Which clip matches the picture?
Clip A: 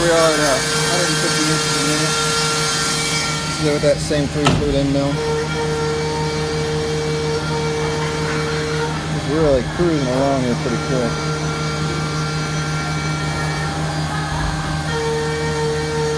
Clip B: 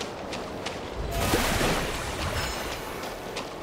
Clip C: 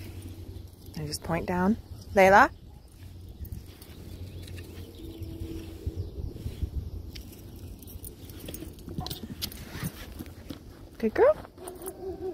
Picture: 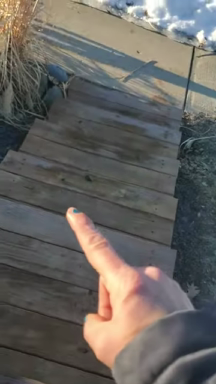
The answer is C